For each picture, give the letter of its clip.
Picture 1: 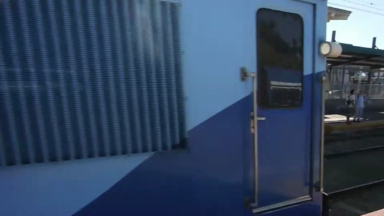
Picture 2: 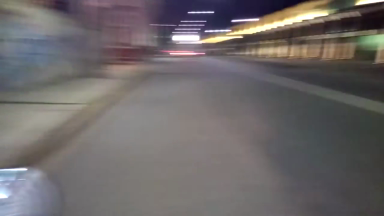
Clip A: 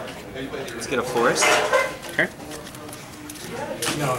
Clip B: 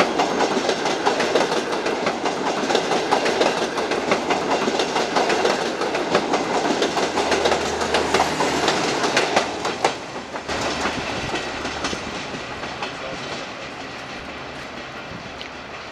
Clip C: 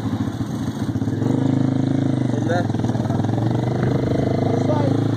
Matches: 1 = B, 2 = C